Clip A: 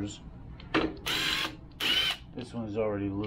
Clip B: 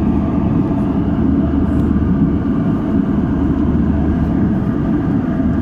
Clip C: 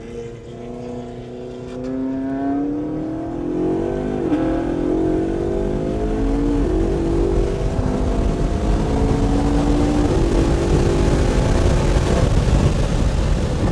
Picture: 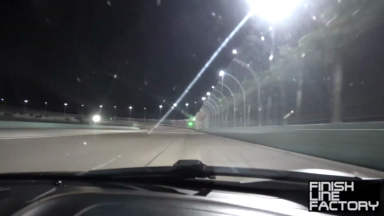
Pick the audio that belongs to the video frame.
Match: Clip C